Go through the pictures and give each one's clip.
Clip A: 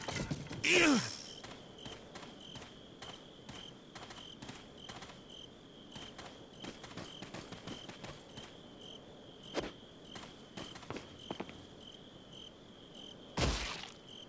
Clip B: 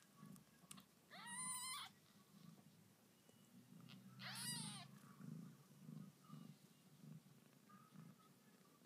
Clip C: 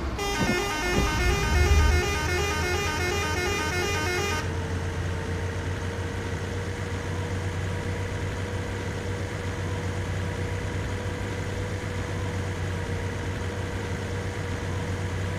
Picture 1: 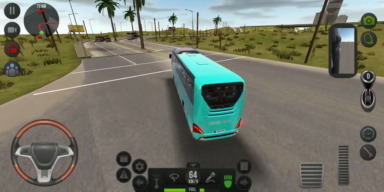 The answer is C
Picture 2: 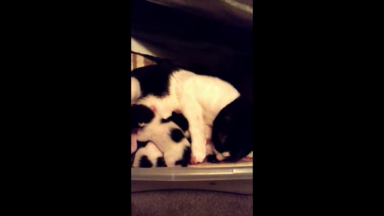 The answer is B